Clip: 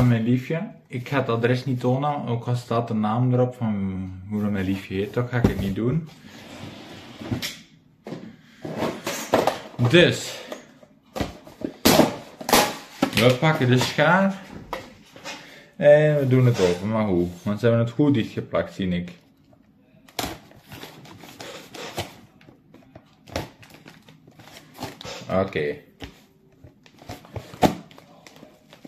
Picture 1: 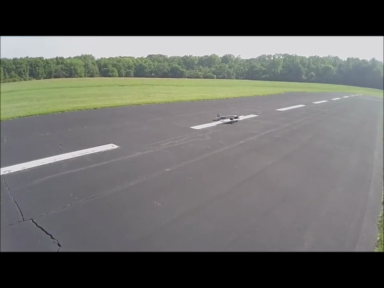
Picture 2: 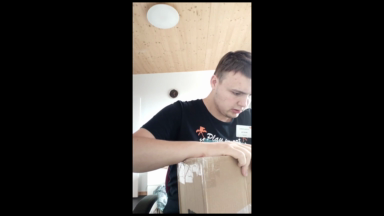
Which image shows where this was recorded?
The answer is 2